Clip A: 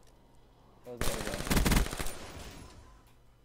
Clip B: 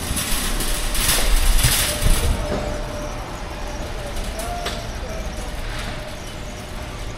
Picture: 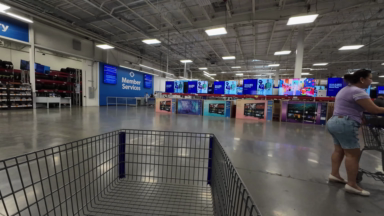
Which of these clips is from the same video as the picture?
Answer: B